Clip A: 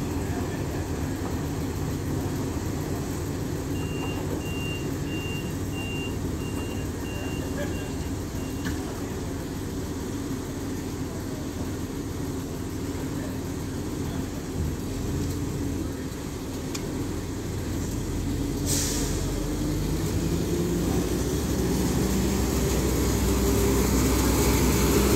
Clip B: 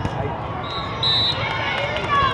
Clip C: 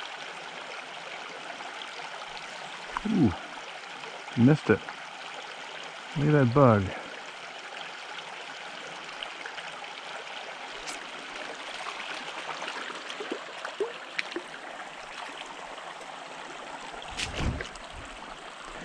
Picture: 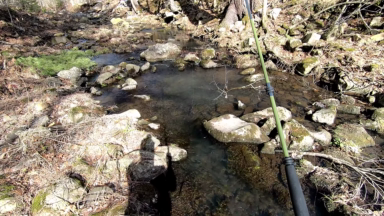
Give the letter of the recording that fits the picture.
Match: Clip C